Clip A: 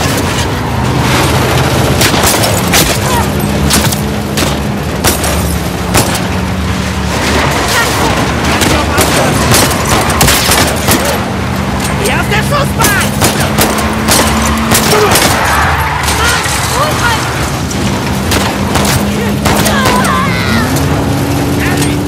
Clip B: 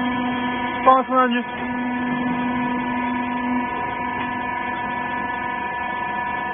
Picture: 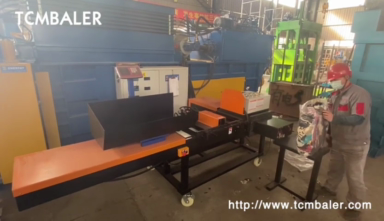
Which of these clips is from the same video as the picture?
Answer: B